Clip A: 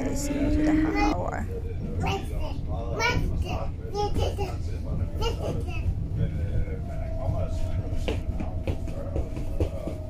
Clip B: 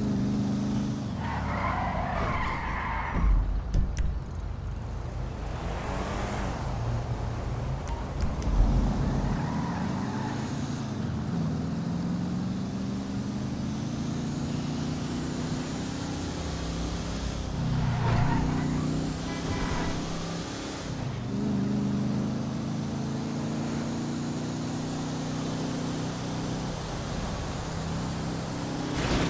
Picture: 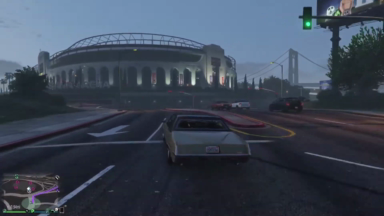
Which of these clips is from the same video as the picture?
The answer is B